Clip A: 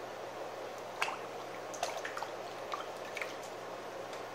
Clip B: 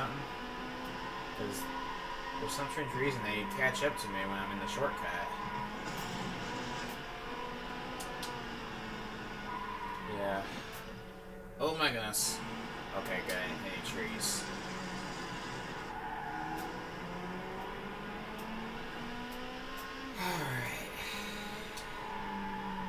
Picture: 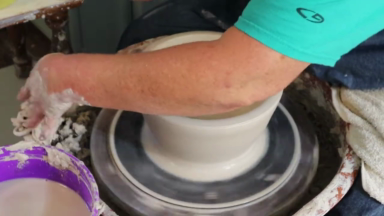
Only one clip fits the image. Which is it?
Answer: A